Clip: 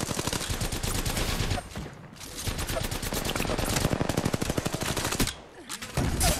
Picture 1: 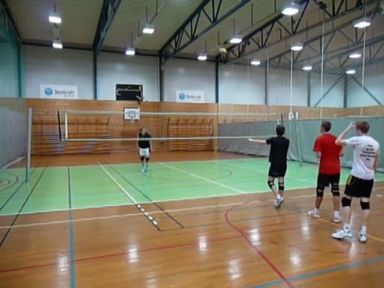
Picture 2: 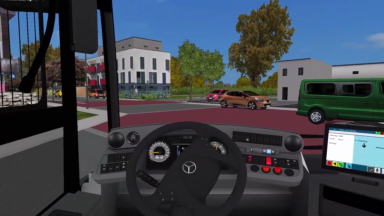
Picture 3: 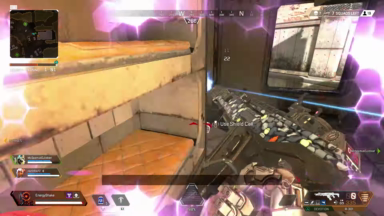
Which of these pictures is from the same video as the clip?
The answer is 3